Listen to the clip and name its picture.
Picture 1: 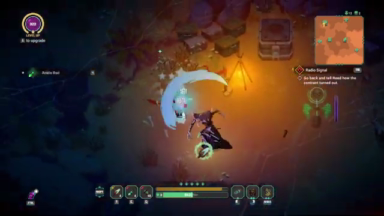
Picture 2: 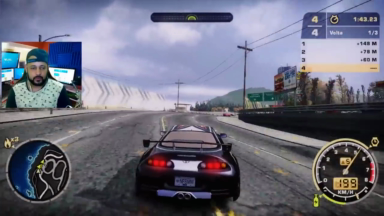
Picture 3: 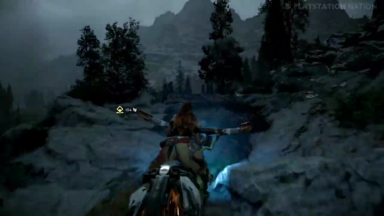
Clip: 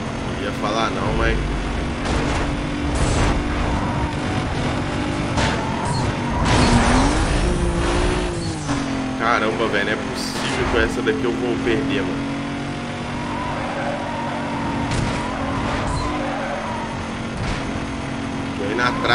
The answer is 2